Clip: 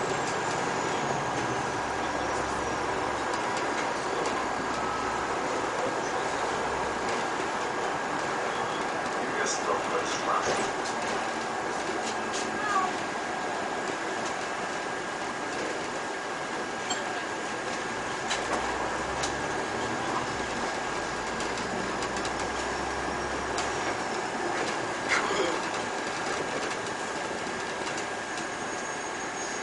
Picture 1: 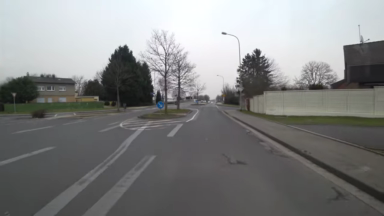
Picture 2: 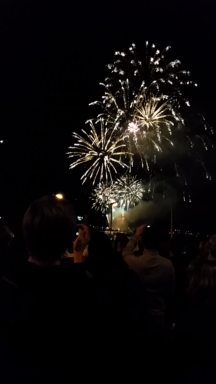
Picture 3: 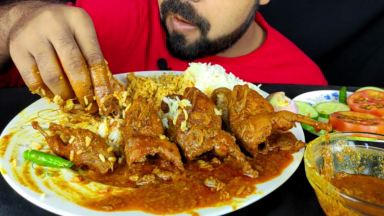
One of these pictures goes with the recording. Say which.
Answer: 1